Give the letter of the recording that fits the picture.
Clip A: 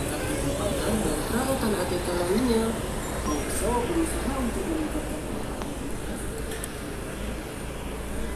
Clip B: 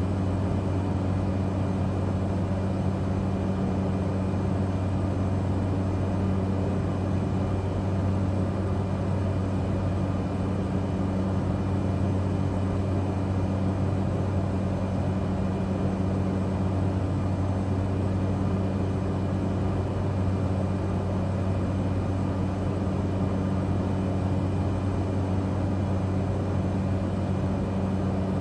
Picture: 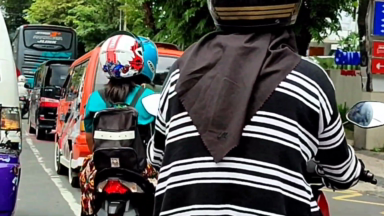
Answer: A